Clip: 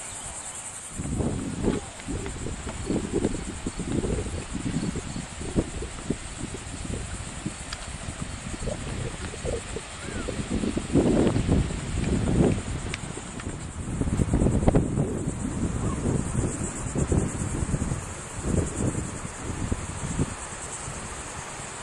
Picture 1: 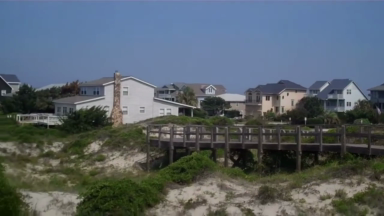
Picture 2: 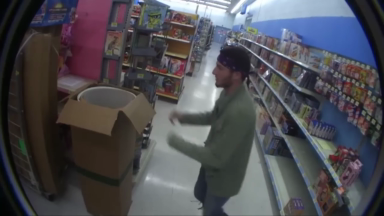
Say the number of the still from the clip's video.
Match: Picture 1